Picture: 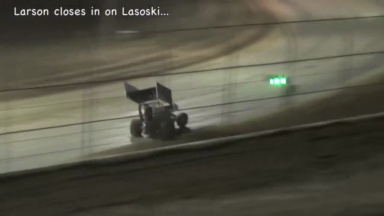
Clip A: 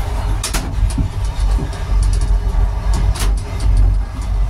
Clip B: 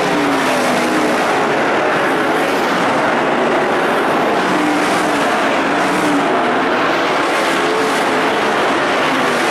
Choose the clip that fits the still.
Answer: B